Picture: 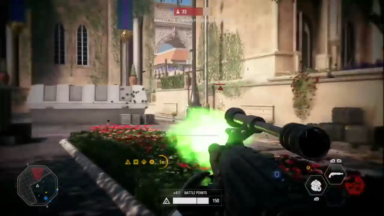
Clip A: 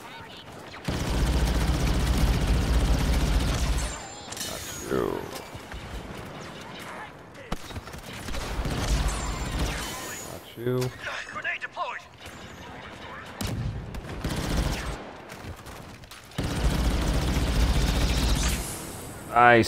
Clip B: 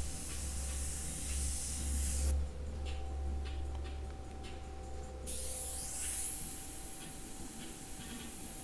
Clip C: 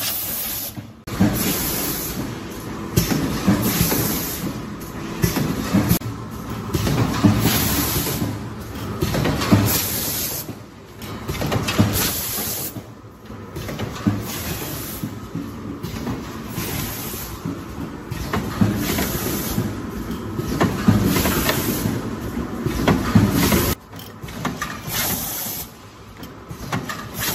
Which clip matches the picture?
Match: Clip A